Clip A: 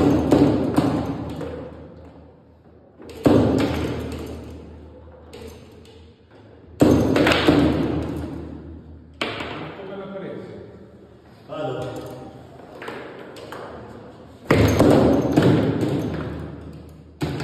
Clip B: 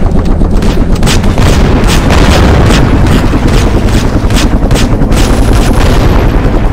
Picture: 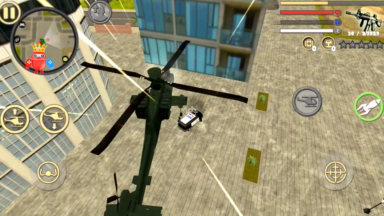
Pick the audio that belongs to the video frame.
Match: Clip B